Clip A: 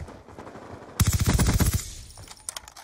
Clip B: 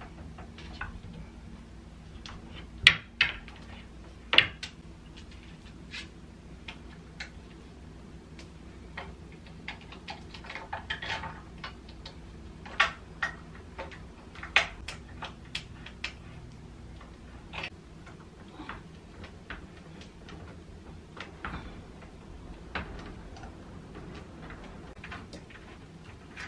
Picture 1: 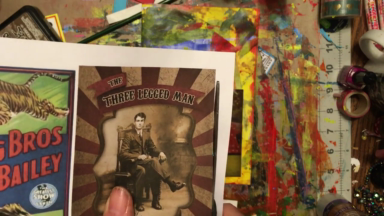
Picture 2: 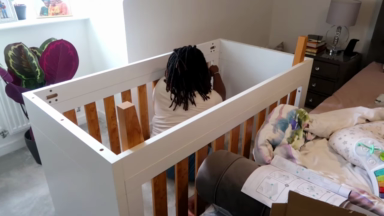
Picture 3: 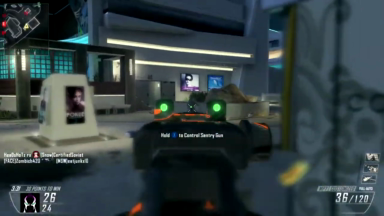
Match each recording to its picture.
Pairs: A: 3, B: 2